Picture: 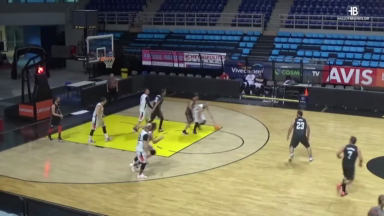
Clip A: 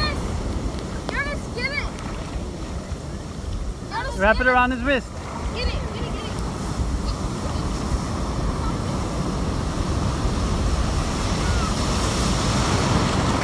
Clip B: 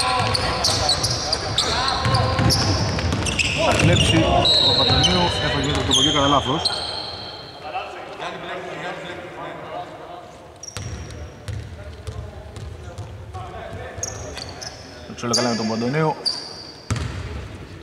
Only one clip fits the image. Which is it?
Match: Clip B